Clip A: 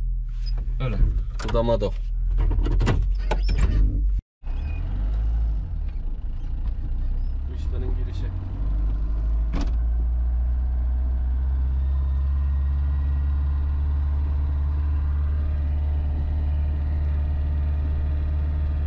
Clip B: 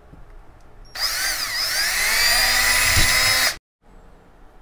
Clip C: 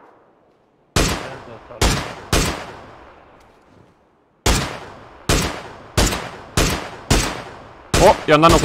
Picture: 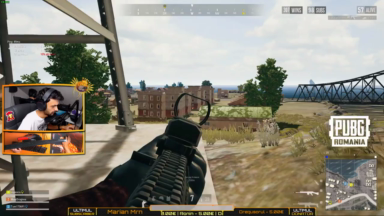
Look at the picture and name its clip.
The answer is C